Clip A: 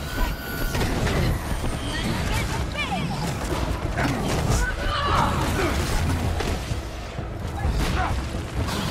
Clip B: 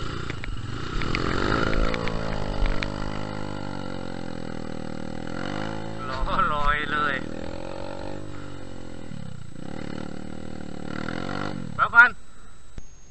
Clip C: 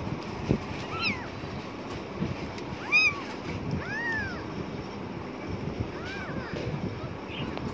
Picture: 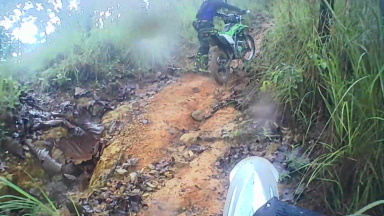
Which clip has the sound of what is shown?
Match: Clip B